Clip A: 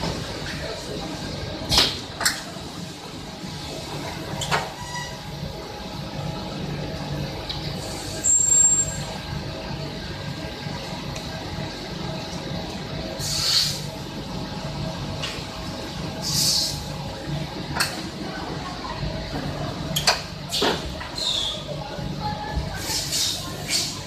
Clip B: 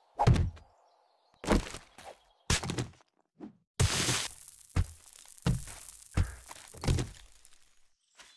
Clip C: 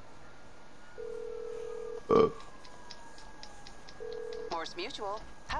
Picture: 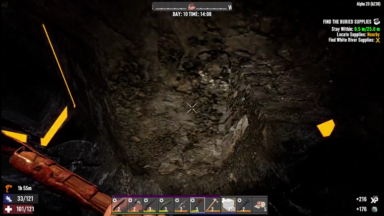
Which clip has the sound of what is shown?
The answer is B